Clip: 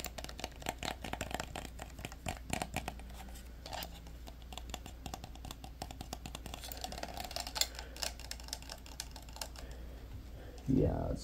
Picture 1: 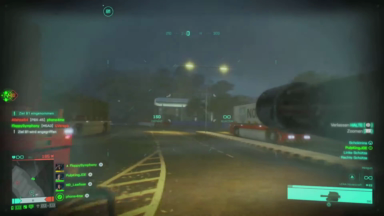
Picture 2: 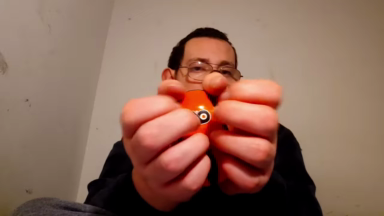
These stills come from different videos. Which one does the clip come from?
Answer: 2